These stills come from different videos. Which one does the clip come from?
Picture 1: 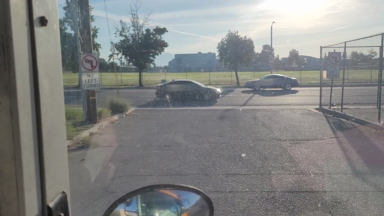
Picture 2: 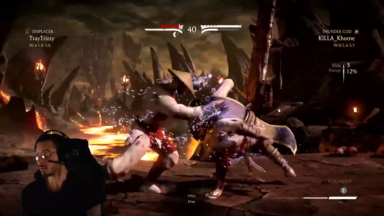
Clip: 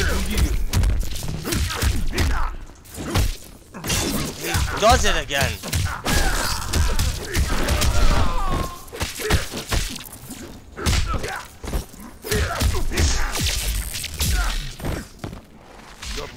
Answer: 2